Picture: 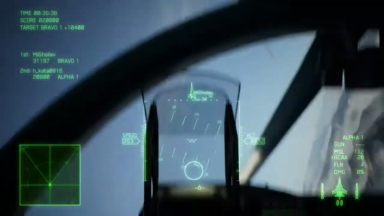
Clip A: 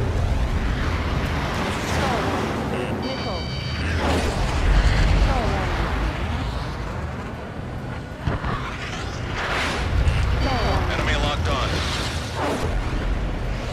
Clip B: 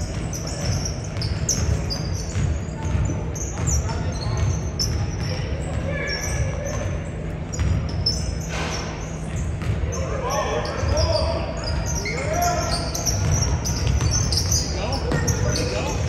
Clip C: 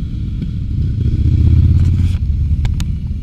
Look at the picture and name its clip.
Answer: A